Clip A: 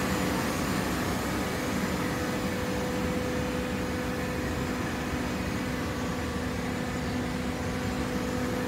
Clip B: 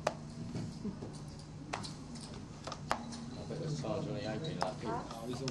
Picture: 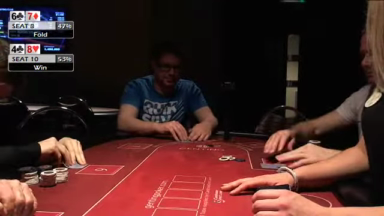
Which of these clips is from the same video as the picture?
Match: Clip B